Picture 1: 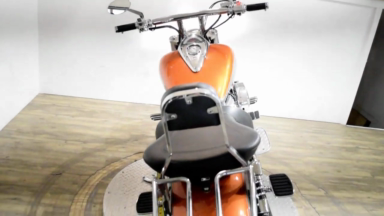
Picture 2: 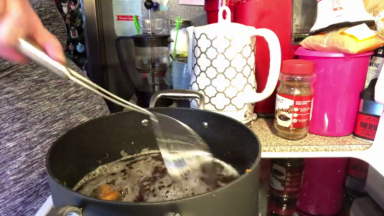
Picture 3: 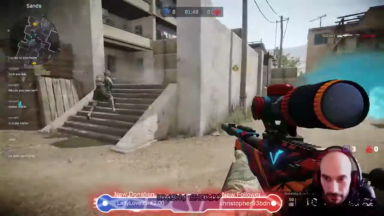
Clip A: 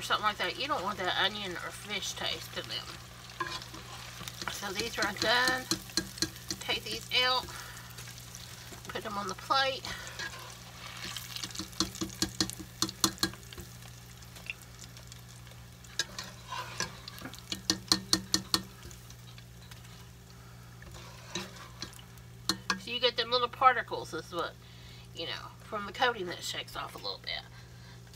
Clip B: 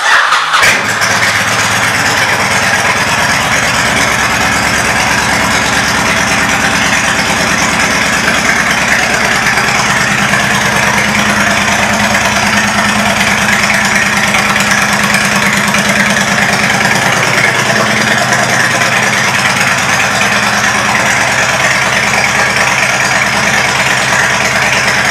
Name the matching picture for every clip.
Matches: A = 2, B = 1